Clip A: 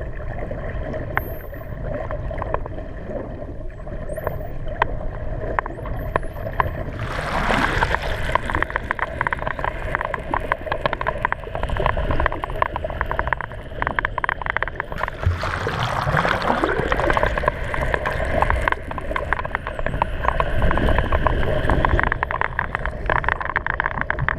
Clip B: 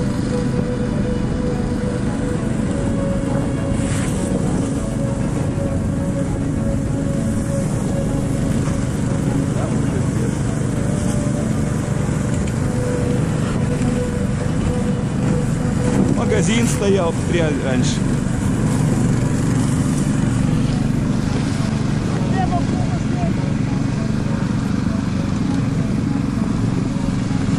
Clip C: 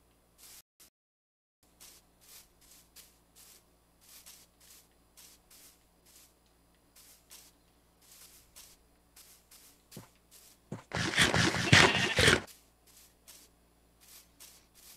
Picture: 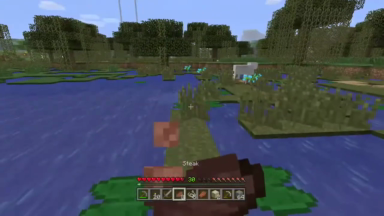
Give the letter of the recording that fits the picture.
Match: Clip C